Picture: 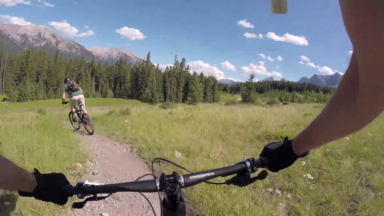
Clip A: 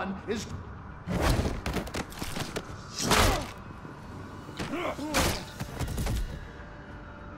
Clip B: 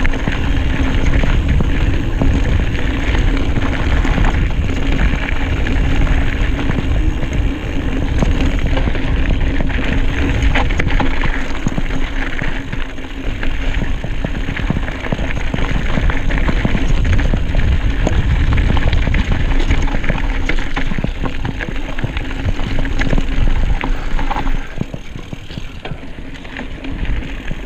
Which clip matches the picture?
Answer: B